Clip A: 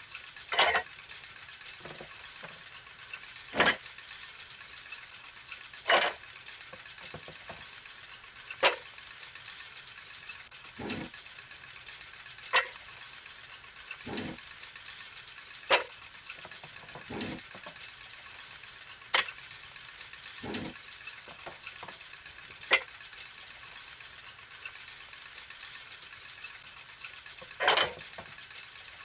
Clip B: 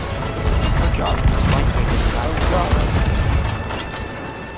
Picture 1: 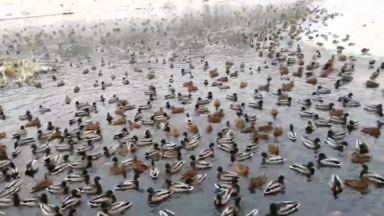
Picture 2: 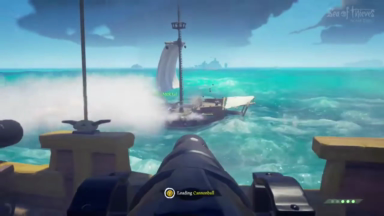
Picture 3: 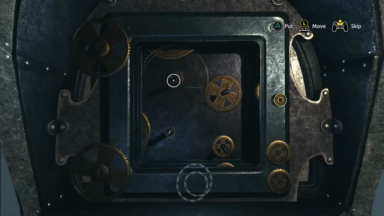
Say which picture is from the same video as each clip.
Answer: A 3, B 2